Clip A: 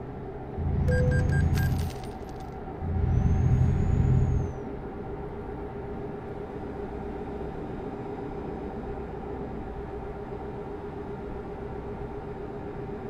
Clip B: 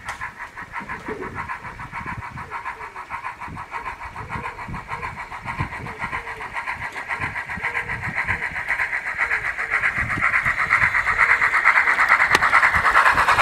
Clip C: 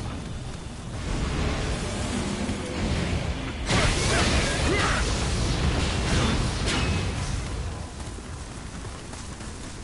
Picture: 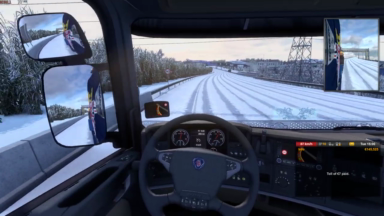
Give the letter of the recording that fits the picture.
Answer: A